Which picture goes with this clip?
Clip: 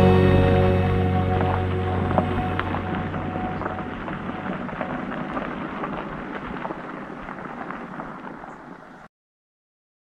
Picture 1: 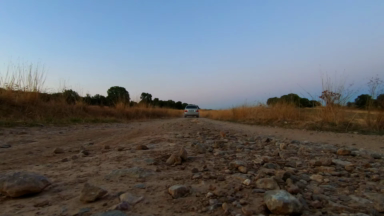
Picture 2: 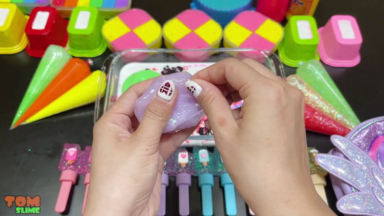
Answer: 1